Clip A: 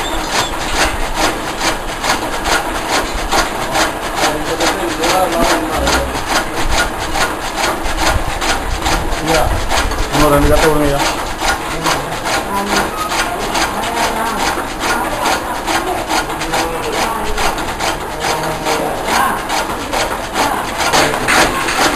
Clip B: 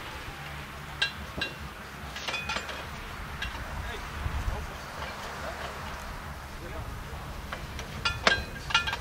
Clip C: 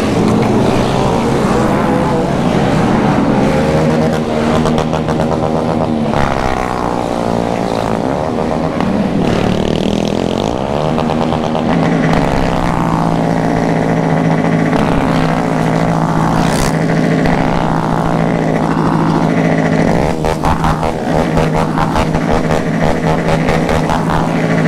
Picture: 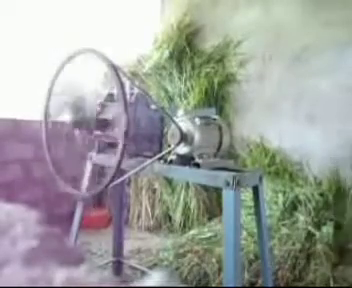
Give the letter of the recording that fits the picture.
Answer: A